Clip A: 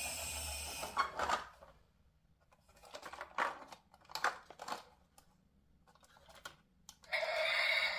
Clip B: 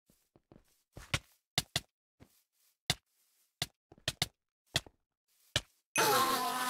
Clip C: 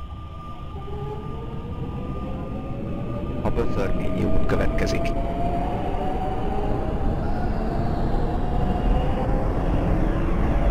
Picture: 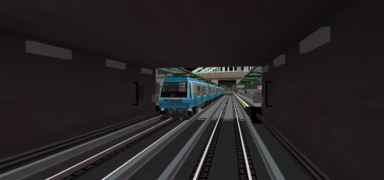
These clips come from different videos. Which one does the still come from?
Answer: C